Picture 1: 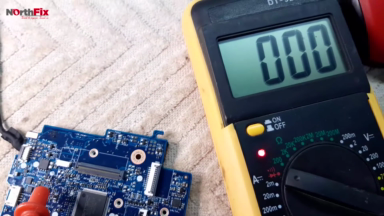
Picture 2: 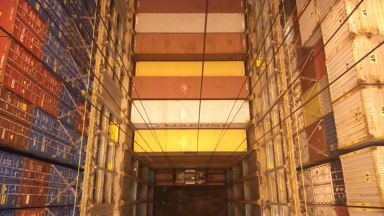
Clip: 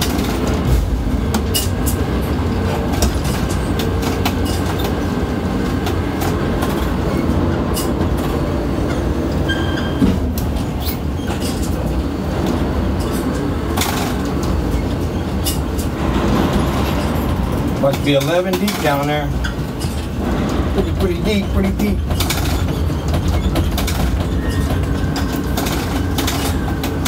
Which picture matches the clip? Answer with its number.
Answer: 2